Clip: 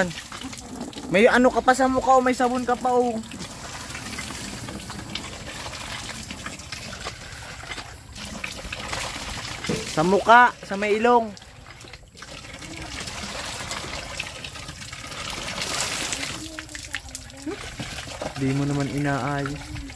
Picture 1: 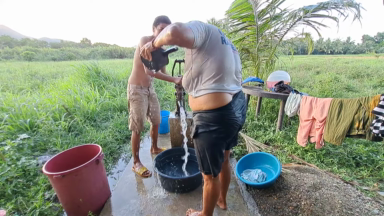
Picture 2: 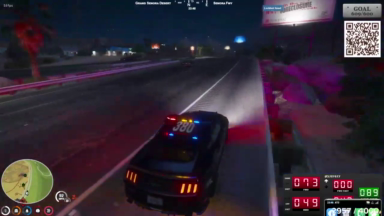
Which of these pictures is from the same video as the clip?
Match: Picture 1